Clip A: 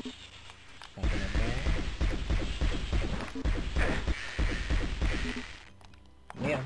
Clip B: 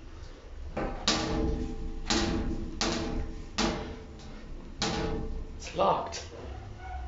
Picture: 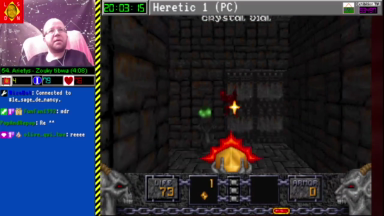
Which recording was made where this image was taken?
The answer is A